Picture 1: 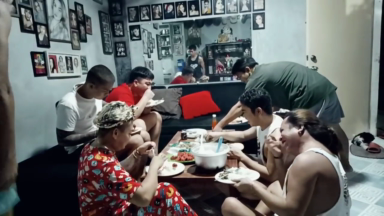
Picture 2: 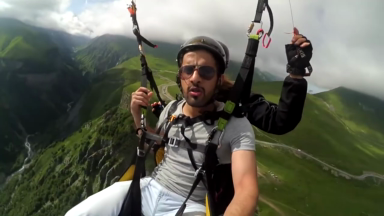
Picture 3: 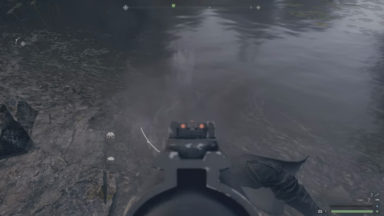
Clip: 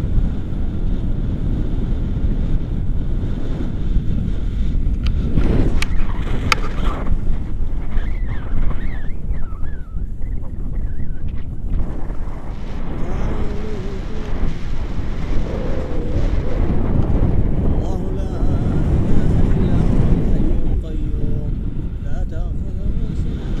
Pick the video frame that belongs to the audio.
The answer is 2